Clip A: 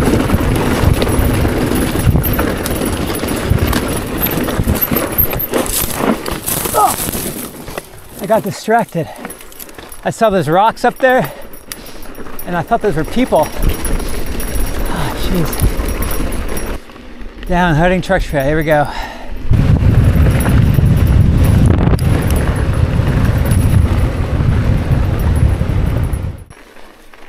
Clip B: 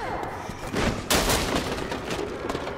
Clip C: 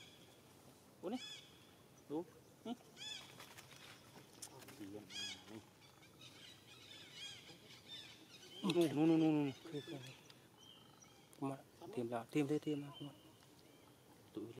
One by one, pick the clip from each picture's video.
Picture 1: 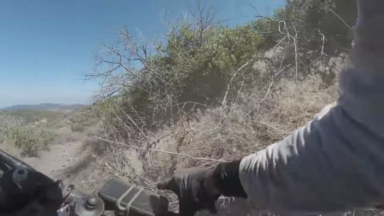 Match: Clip A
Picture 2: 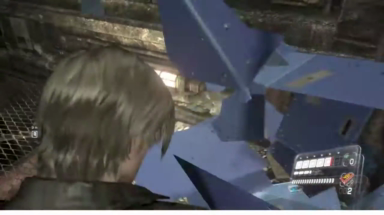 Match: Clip B